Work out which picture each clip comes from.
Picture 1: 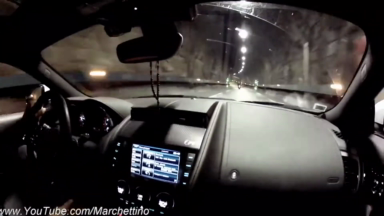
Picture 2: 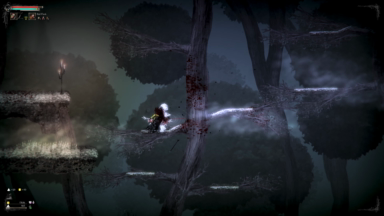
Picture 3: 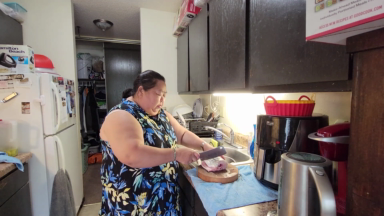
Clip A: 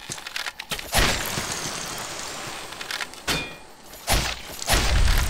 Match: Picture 2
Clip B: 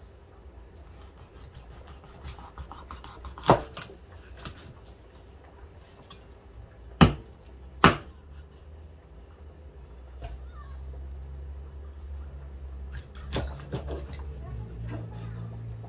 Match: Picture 3